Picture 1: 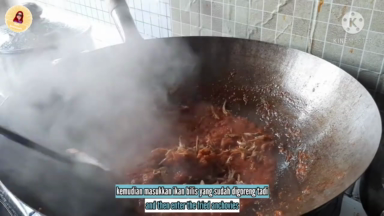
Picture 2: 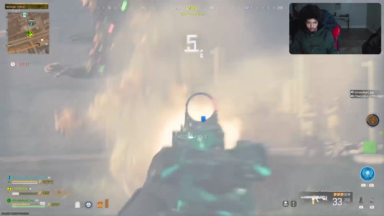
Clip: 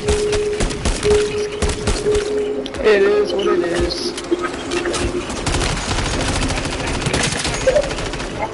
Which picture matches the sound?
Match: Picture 2